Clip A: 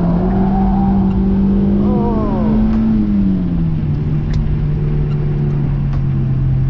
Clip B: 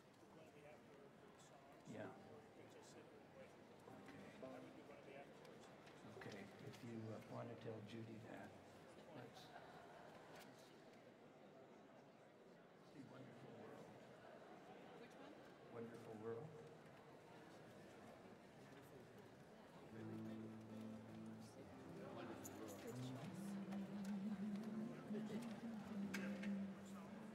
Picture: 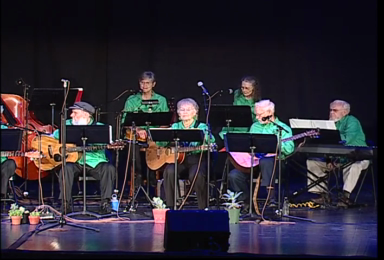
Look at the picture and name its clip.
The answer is B